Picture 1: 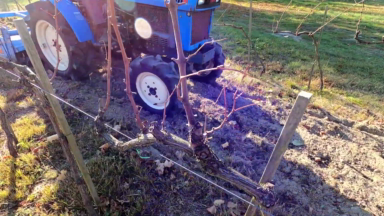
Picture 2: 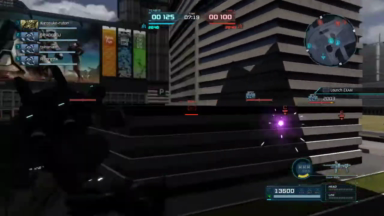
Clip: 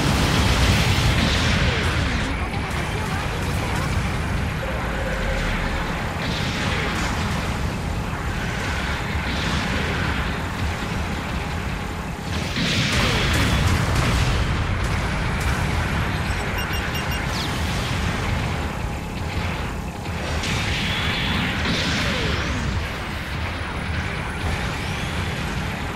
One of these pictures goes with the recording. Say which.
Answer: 2